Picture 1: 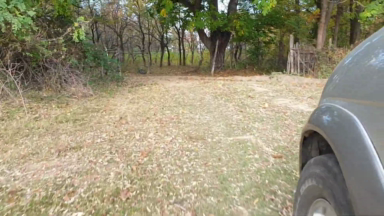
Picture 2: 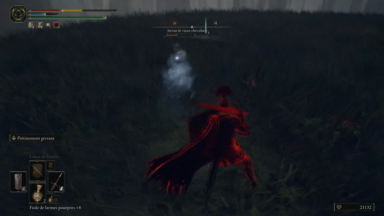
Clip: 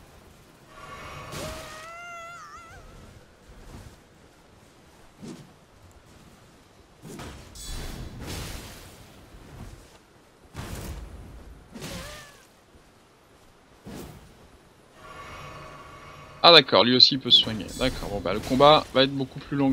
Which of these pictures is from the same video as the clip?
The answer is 2